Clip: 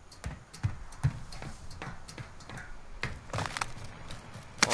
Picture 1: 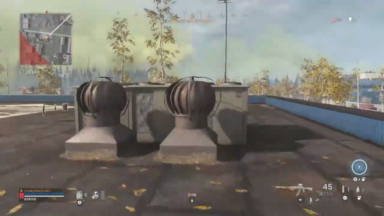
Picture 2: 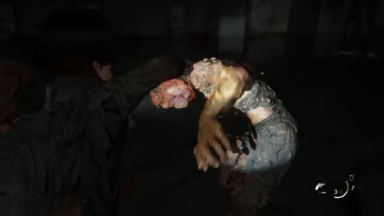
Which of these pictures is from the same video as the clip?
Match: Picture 1